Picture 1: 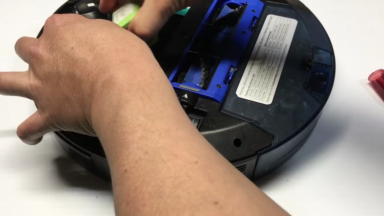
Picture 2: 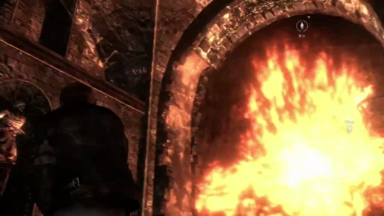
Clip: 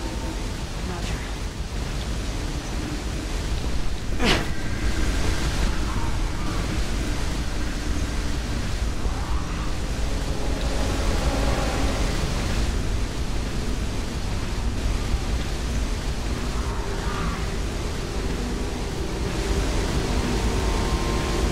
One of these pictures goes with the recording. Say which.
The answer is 2